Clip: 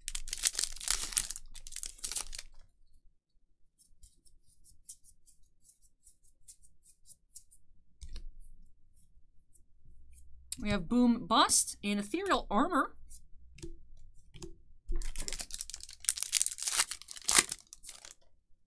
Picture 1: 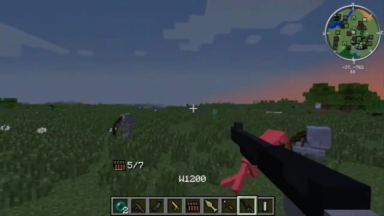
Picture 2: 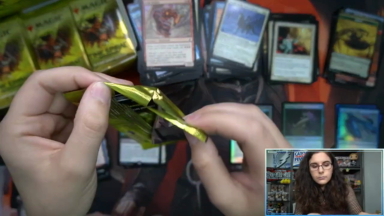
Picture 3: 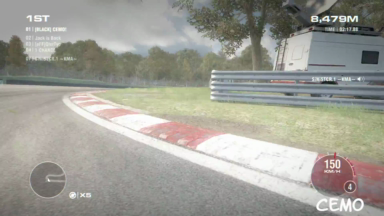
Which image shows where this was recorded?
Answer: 2